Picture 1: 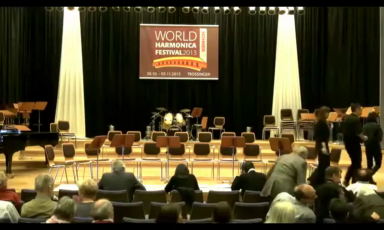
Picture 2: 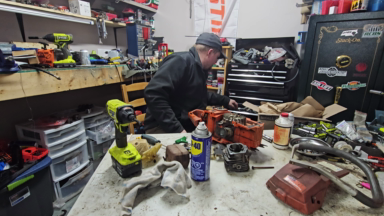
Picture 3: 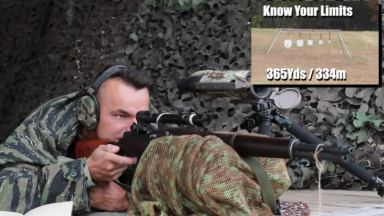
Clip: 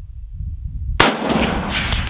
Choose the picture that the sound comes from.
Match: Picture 3